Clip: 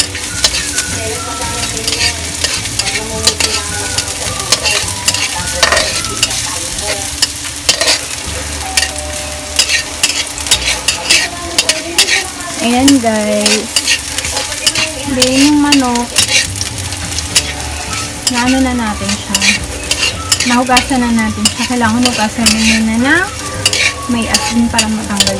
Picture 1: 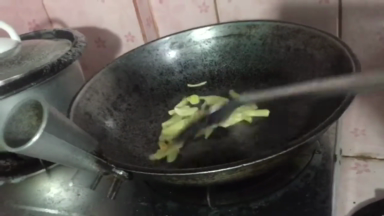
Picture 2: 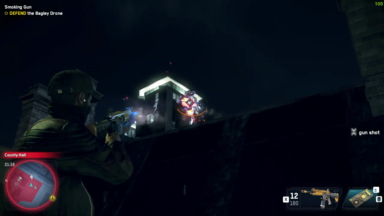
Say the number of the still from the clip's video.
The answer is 1